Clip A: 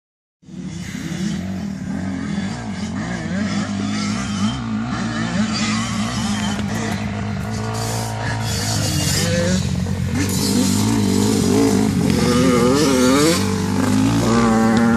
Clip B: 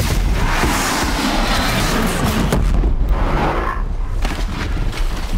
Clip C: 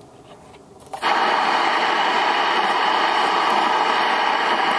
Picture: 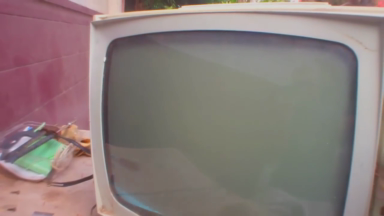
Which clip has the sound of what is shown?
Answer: C